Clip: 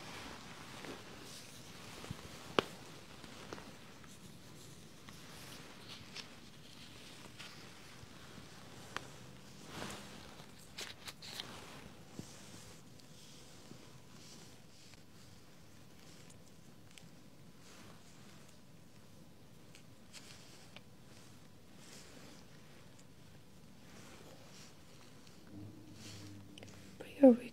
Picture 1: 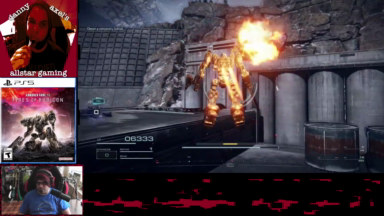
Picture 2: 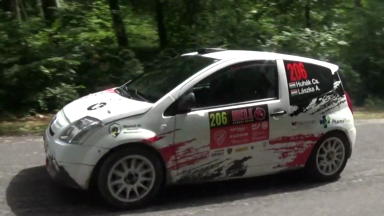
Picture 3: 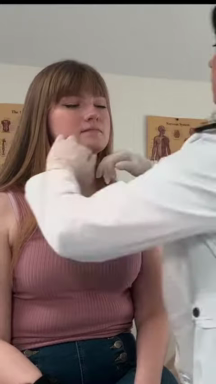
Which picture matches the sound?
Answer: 3